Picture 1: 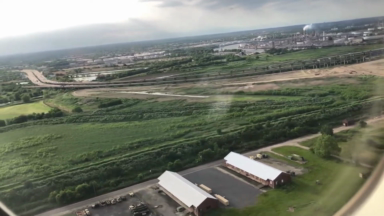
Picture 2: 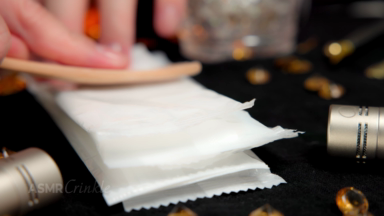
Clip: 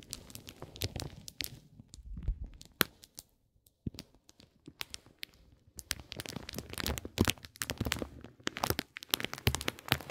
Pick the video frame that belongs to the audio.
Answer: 2